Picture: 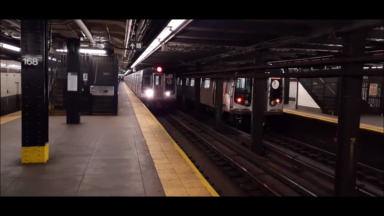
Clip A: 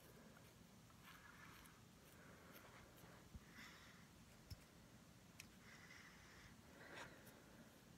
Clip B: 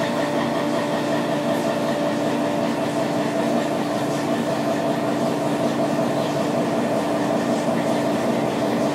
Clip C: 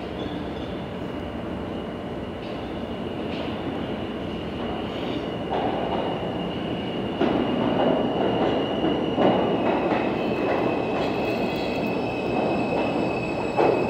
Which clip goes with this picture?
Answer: C